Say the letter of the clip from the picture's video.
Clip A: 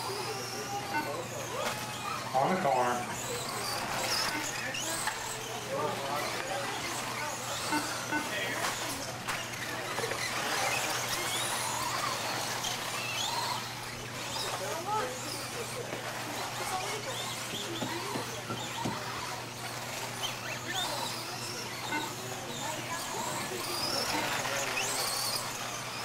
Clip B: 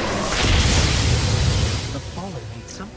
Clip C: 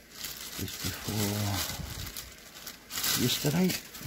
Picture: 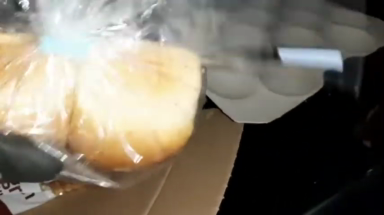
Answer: C